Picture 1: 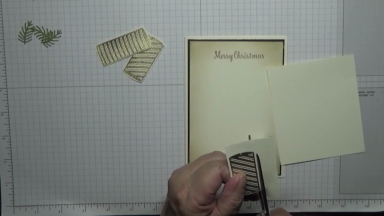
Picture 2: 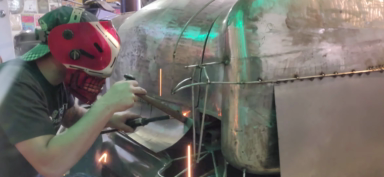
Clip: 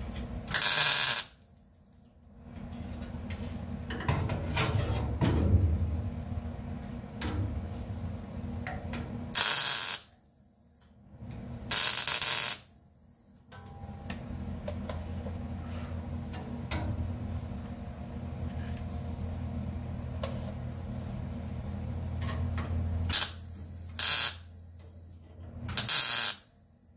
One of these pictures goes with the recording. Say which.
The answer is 2